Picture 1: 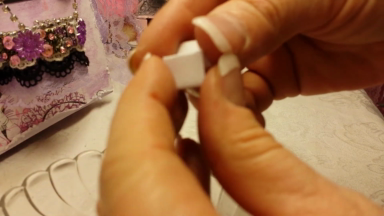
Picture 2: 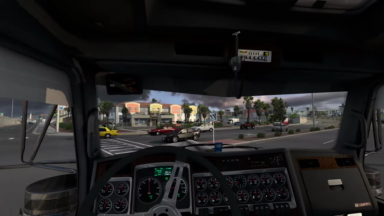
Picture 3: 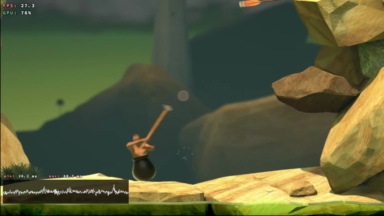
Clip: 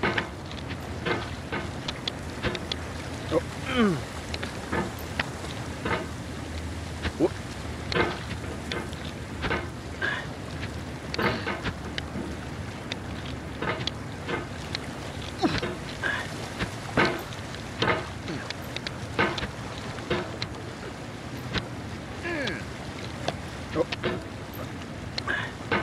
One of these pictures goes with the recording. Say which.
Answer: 3